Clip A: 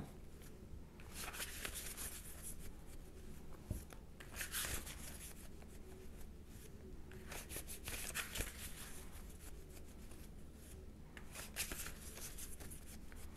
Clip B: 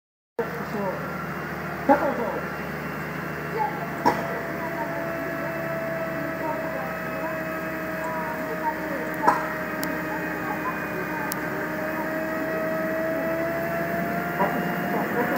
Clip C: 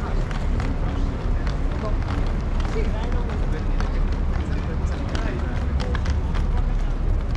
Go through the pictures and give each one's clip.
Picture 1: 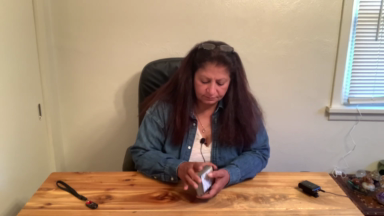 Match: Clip A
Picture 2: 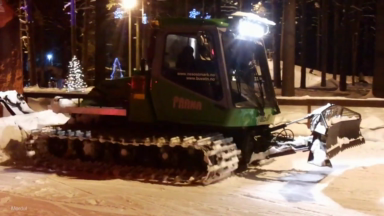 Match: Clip B